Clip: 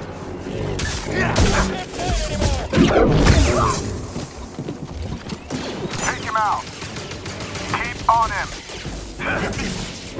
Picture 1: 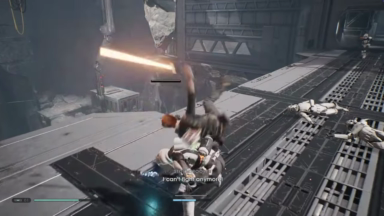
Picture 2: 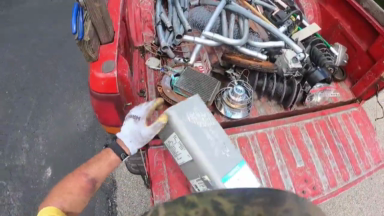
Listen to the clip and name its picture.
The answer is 1